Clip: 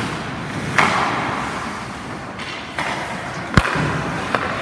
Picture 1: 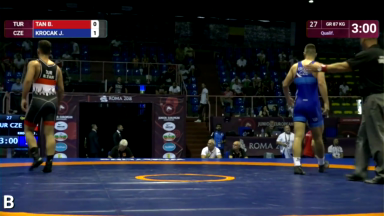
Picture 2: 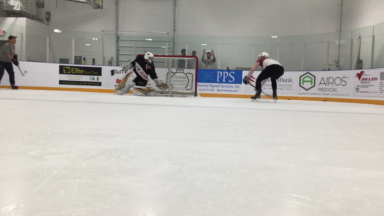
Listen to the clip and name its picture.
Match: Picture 2